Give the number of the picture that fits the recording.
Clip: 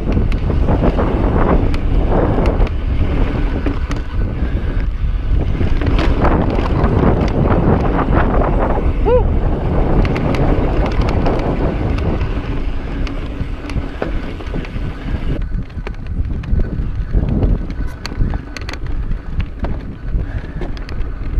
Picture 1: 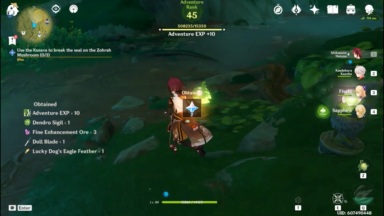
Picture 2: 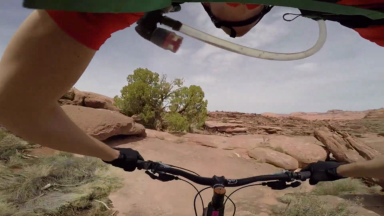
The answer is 2